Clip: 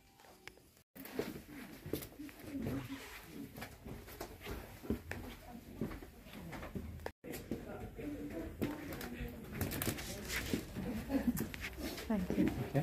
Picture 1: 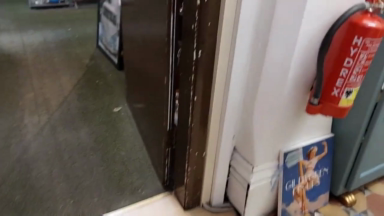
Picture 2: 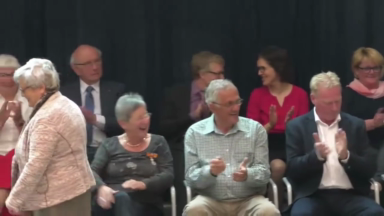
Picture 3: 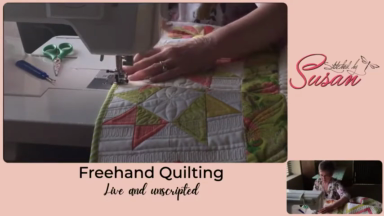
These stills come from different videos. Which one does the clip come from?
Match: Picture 1